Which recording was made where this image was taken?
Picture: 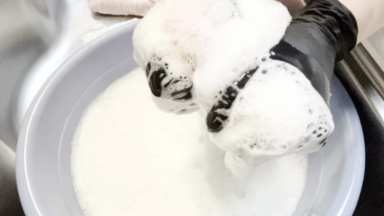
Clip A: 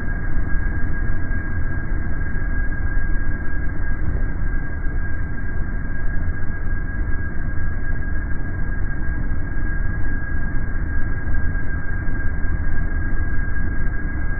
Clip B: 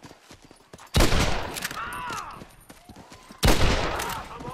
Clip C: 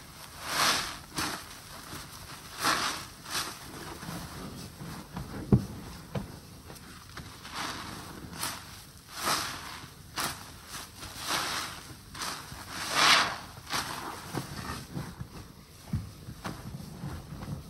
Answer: C